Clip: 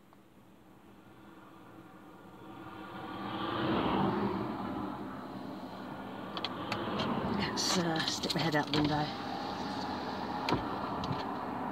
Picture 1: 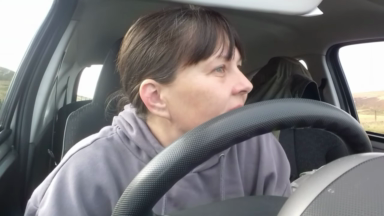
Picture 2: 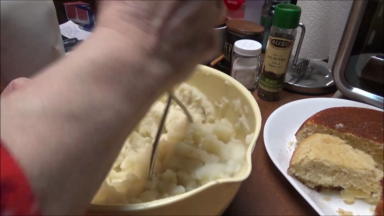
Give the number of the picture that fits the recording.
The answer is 1